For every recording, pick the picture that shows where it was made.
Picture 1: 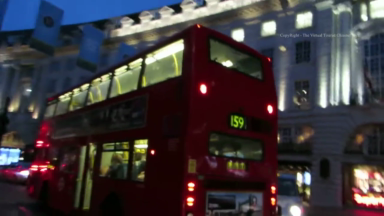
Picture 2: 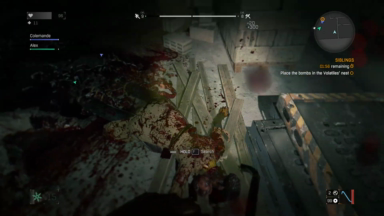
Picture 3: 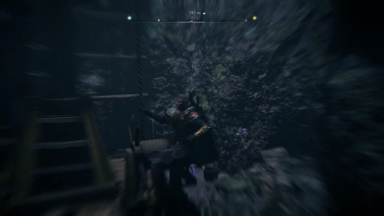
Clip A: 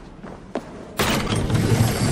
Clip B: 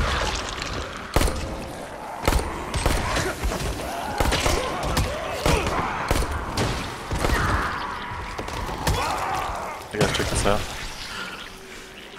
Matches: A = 3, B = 2